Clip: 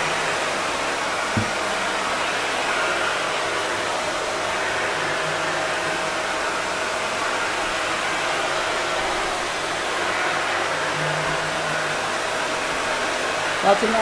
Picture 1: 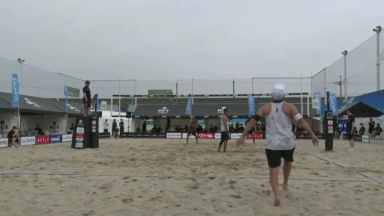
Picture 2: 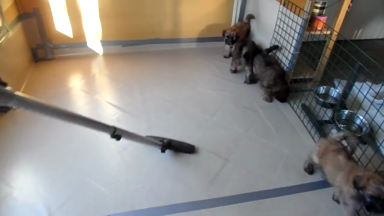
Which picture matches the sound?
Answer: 2